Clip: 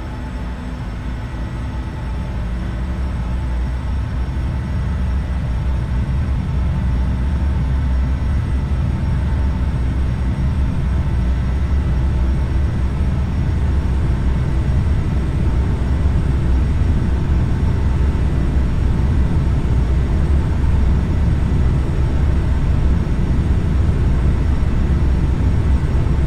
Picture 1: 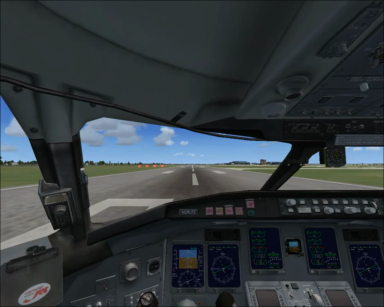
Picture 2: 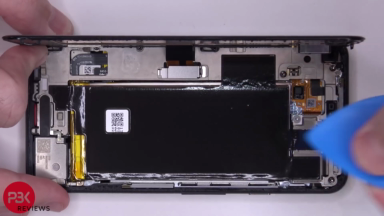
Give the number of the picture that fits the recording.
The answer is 1